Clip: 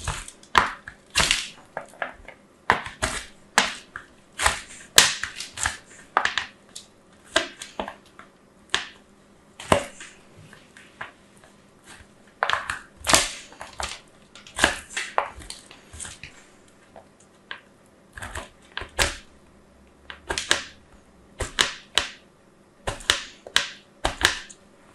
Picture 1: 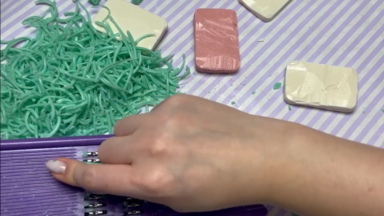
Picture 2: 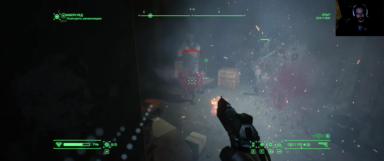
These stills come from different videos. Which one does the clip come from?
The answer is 1